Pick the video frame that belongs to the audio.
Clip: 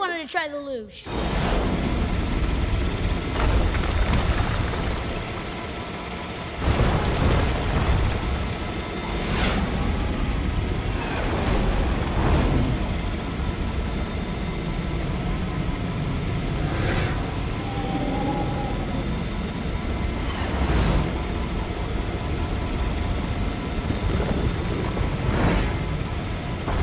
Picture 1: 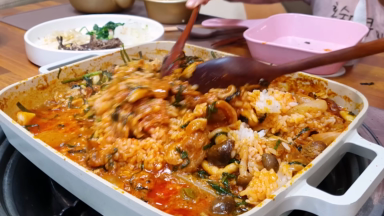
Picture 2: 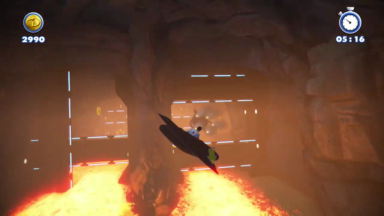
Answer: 2